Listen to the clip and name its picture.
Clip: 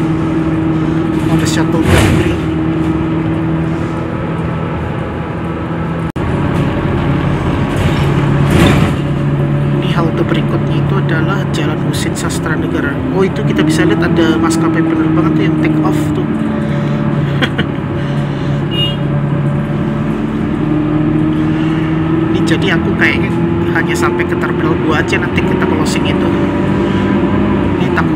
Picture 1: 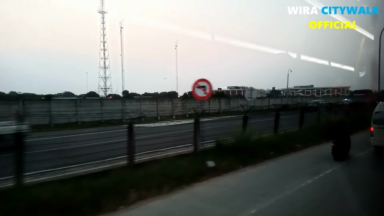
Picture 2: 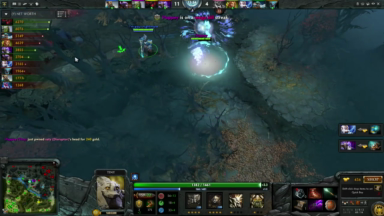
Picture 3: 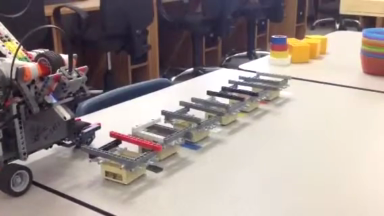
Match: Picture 1